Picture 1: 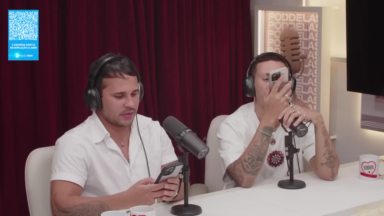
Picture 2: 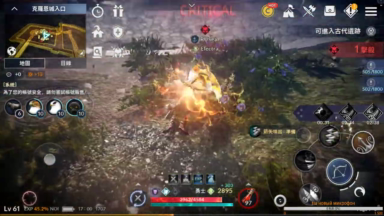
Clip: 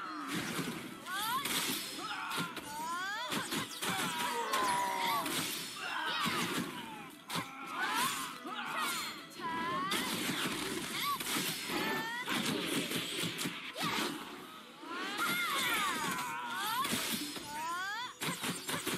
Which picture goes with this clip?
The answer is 2